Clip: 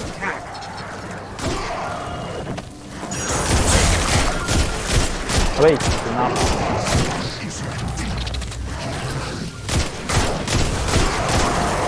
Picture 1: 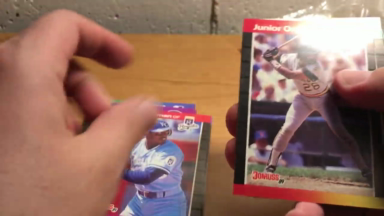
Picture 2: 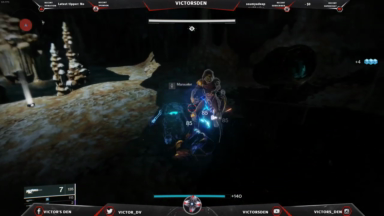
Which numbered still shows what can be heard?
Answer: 2